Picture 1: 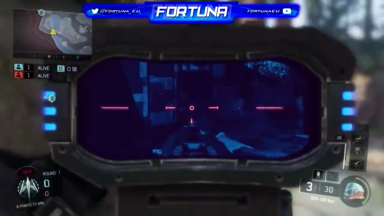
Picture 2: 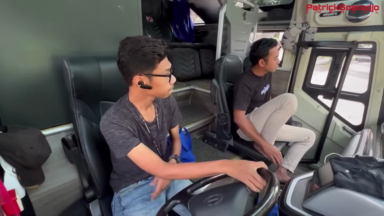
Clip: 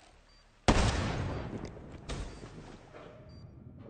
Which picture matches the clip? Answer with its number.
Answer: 1